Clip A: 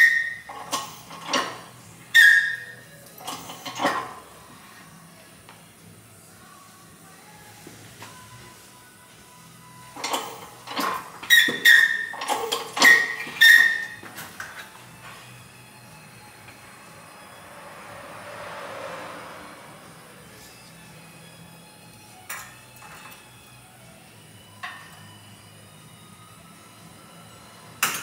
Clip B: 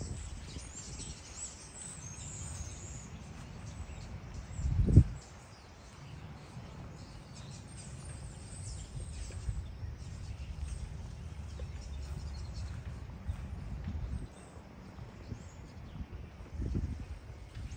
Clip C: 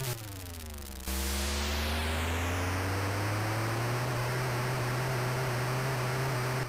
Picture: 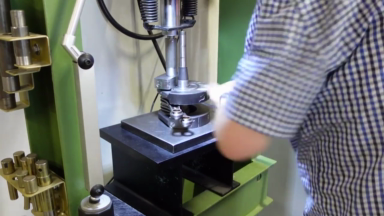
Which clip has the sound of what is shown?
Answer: A